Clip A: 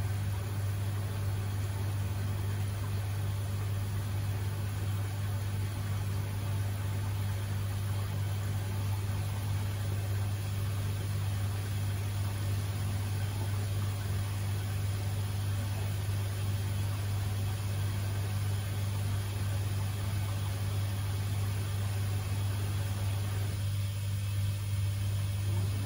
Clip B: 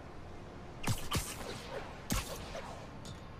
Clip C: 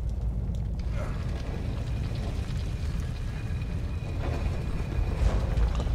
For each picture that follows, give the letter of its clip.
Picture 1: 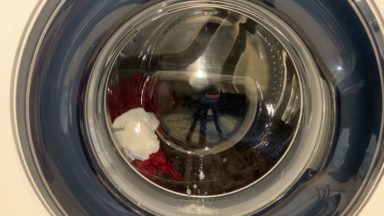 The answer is A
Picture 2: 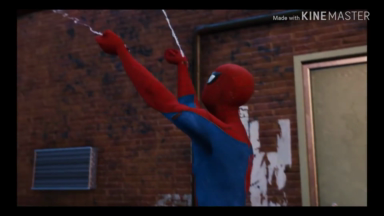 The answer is B